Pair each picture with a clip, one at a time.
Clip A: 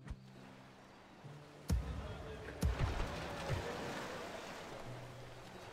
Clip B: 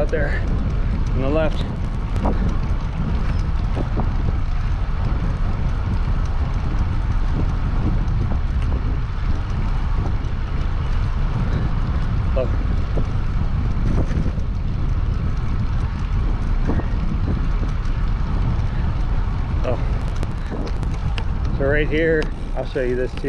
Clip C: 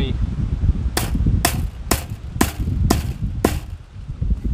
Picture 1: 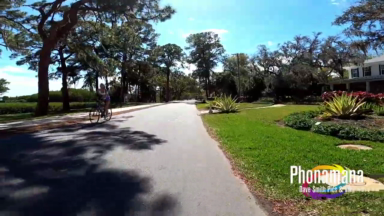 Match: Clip B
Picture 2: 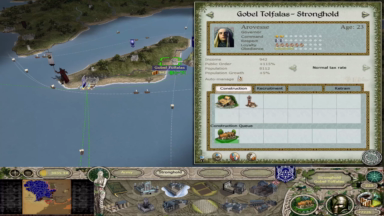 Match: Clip A